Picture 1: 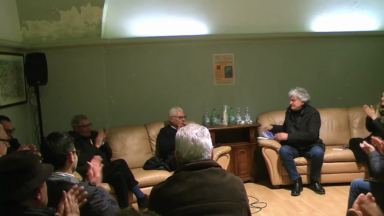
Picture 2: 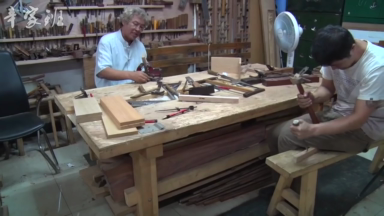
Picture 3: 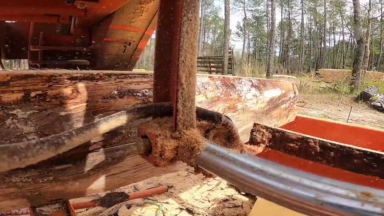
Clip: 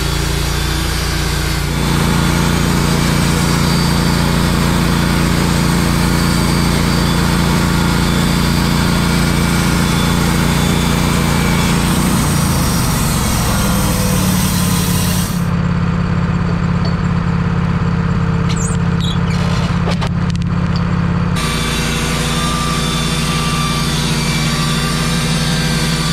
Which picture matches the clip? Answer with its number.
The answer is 3